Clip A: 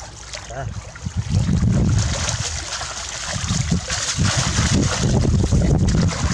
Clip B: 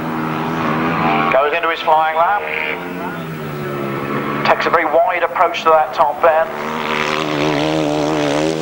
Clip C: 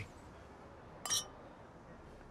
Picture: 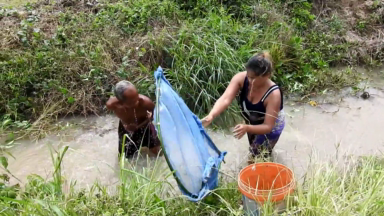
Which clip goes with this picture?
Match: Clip A